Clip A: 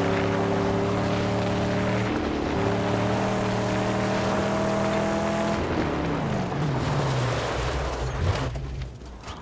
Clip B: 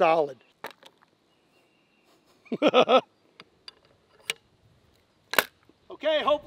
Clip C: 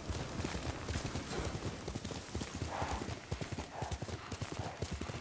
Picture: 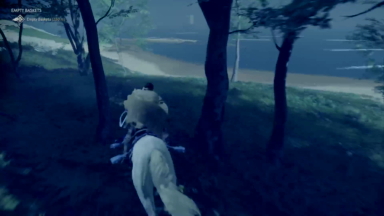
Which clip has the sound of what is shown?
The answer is C